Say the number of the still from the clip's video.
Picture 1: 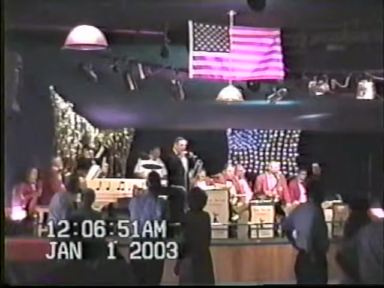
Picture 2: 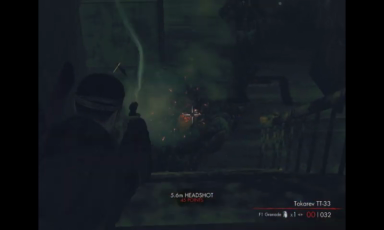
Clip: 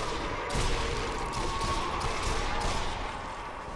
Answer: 2